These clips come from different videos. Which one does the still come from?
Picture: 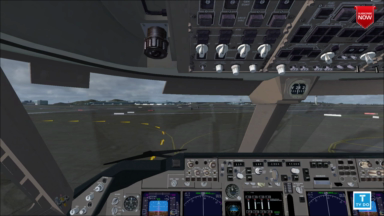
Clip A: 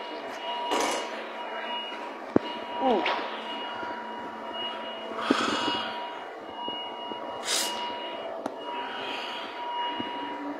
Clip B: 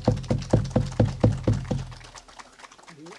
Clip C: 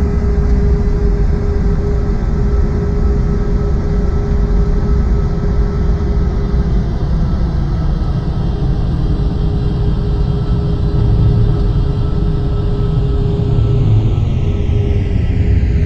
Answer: C